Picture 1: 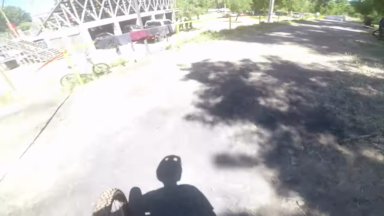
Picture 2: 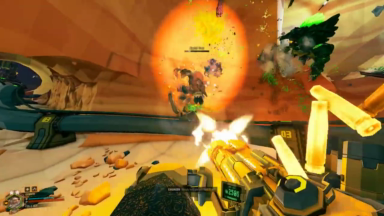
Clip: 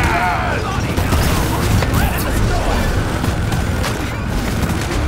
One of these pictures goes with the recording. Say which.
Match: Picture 2